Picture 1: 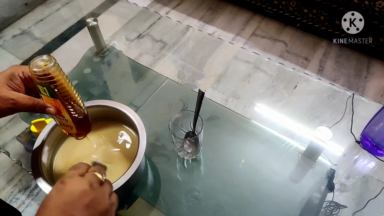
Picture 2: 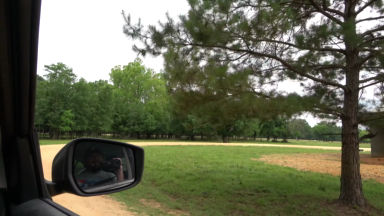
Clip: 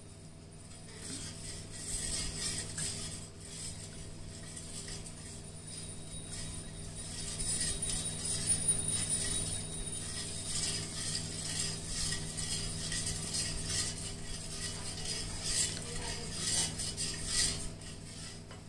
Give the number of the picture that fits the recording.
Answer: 1